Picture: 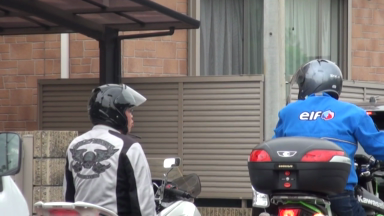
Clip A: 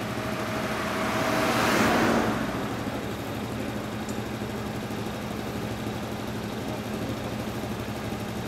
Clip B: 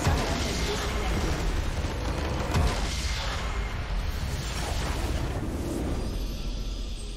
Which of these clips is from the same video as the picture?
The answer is A